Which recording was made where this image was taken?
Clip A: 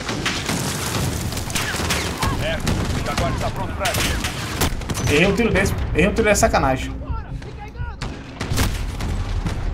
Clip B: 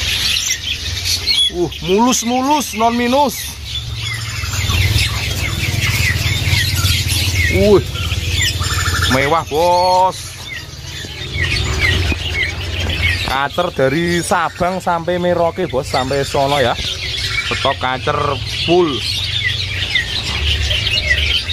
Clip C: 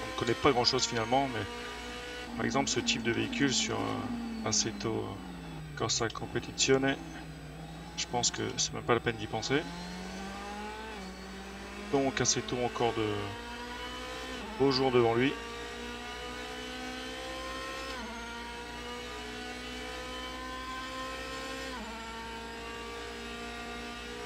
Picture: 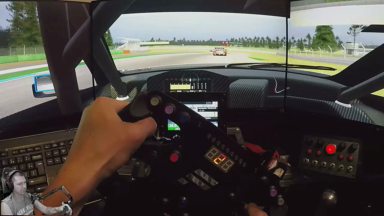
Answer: C